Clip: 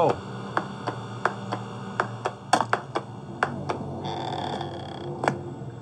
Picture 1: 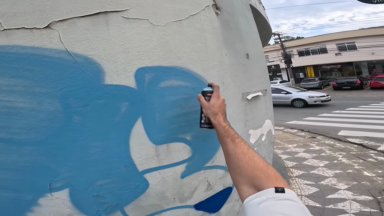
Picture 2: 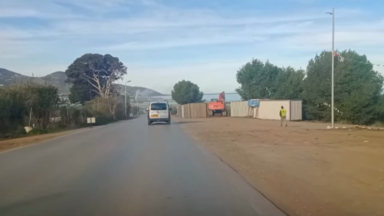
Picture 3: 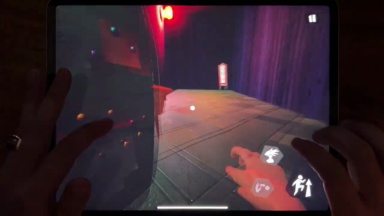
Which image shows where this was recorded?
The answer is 3